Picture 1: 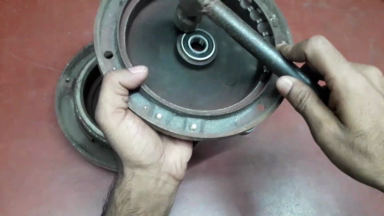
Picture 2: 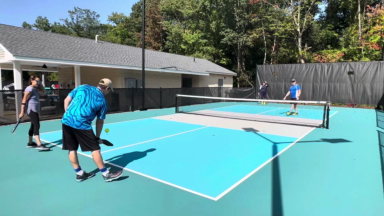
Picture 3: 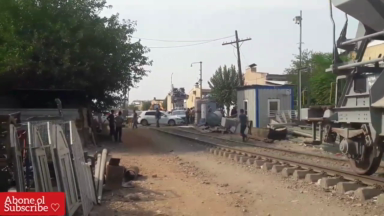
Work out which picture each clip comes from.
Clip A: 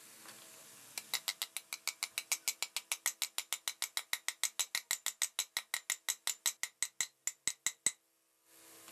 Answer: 1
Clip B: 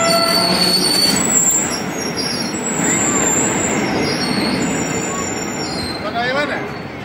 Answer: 3